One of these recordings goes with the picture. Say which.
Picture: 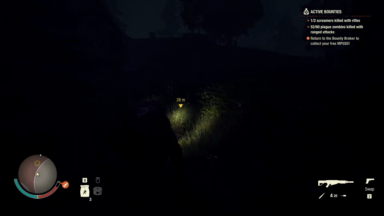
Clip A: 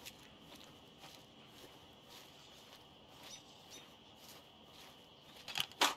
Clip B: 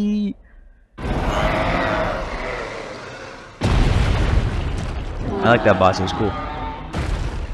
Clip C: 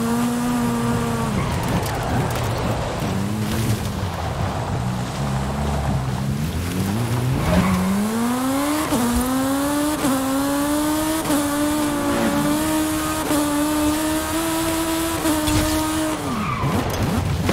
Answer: A